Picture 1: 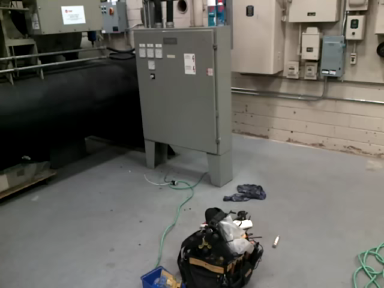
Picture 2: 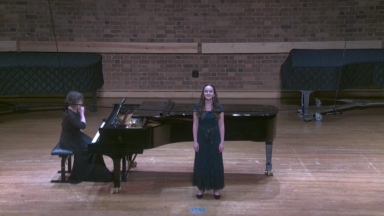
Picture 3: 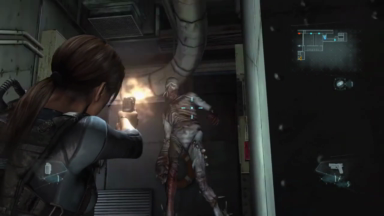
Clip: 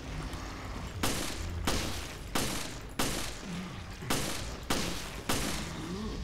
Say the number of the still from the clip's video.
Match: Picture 3